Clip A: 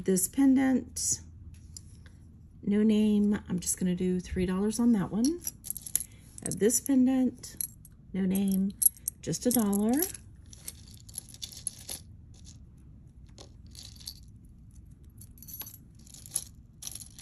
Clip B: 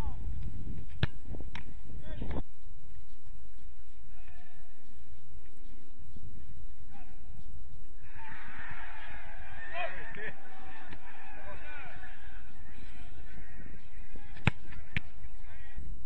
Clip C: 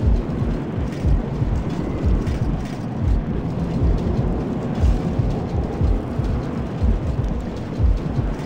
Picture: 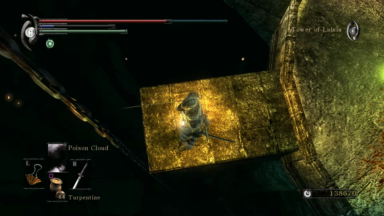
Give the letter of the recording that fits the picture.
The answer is C